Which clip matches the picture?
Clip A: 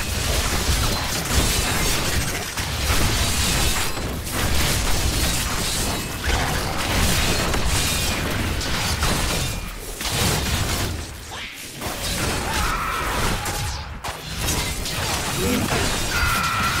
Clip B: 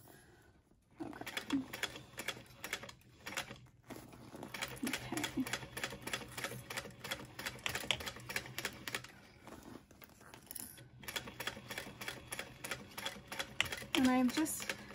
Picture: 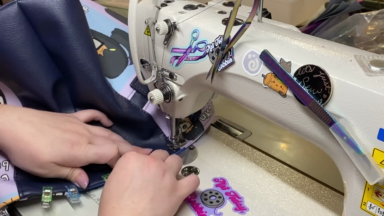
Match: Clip B